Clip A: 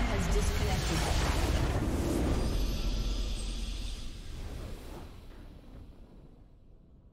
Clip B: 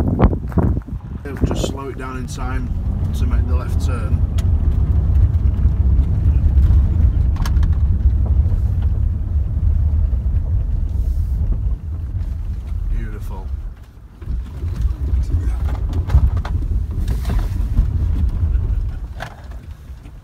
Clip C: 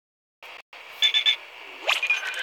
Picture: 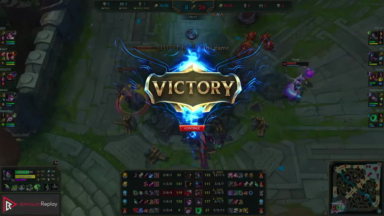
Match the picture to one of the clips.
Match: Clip A